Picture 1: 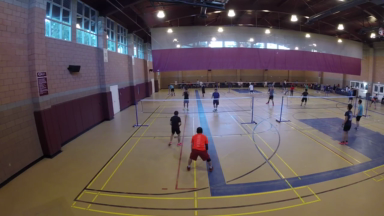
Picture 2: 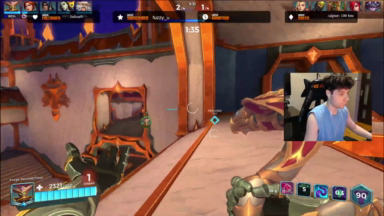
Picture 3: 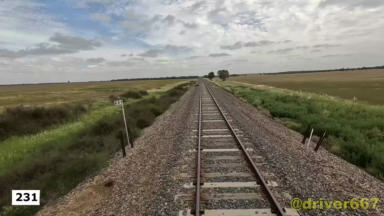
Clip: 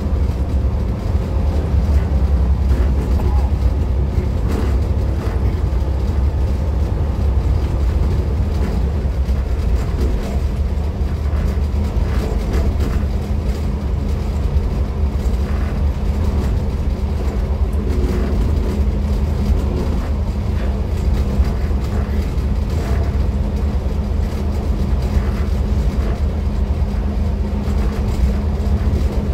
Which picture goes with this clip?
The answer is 3